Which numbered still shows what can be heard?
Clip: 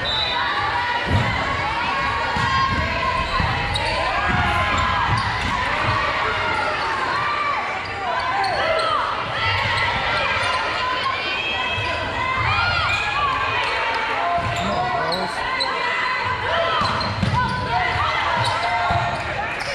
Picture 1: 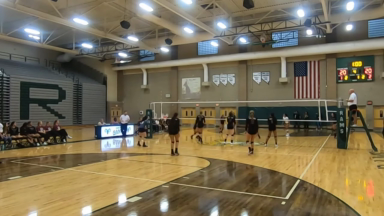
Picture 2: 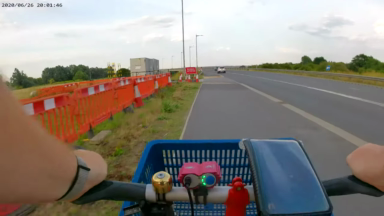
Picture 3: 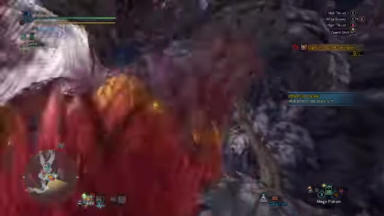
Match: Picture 1